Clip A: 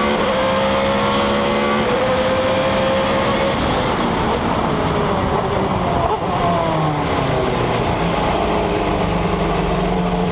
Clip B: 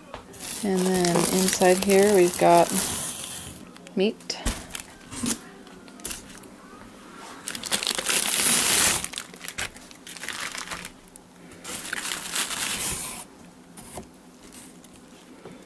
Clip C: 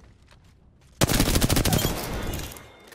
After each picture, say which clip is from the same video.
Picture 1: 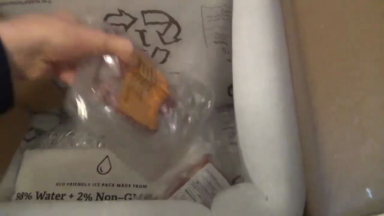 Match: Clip B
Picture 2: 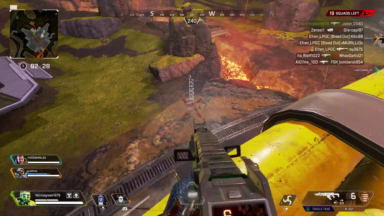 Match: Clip C